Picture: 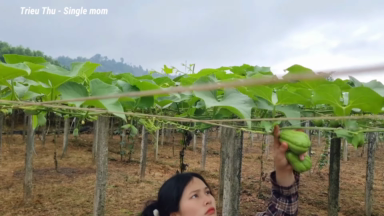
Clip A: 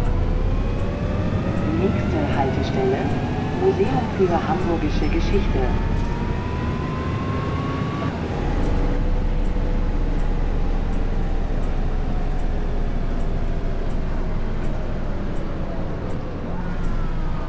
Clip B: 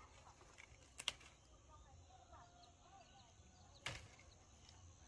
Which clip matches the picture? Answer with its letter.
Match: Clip B